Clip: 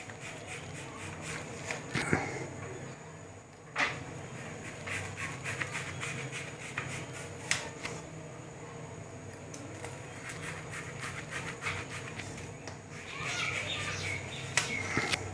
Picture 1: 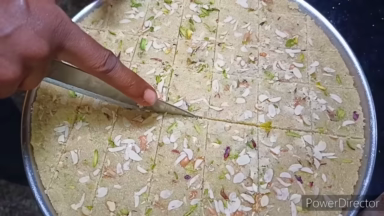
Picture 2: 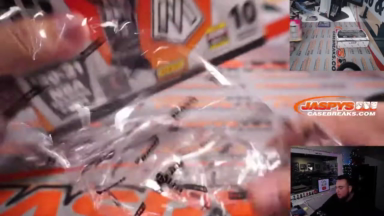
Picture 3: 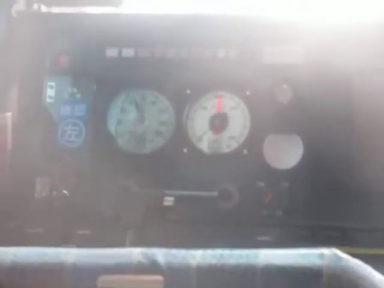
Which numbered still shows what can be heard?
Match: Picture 1